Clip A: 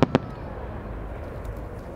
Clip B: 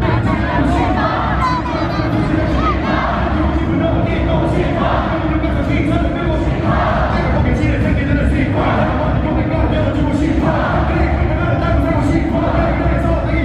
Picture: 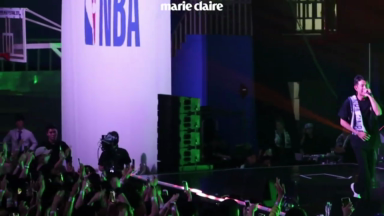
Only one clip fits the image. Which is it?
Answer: B